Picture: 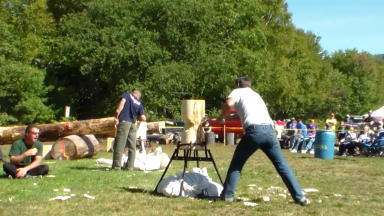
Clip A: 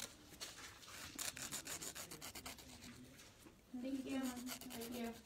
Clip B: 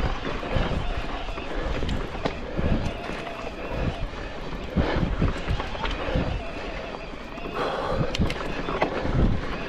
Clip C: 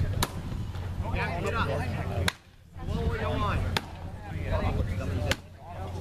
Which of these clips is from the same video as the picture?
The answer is C